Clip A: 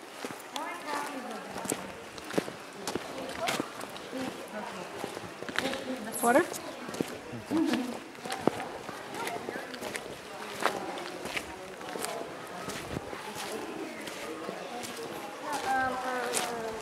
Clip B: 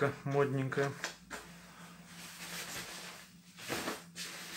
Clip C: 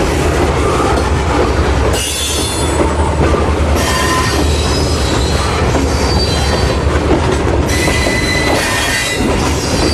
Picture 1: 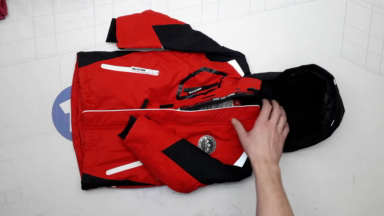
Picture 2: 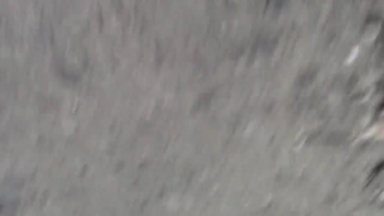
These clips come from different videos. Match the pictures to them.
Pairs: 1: B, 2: A